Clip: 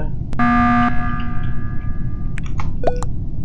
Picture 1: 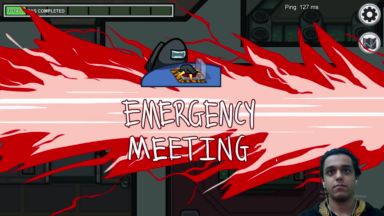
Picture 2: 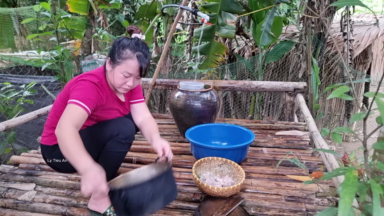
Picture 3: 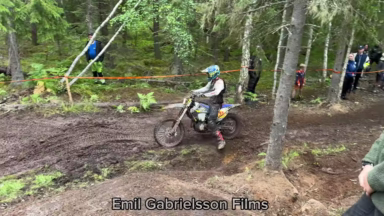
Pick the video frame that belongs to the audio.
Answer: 1